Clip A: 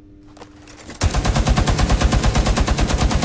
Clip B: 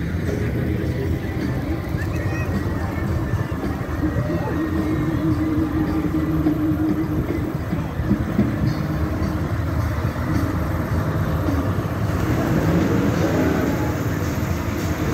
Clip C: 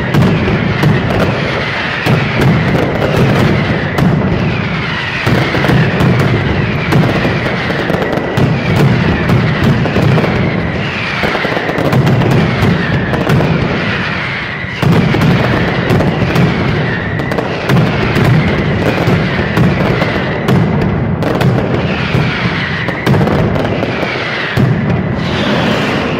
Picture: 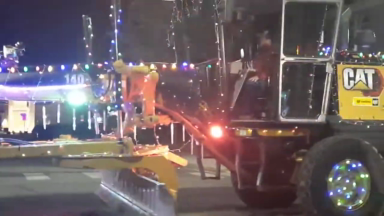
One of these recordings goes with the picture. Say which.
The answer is B